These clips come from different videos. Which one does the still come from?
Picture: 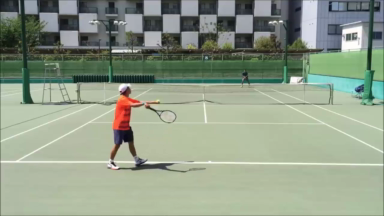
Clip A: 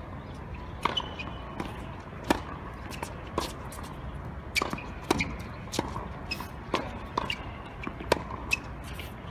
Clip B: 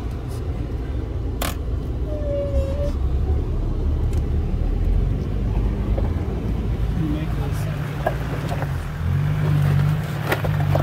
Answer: A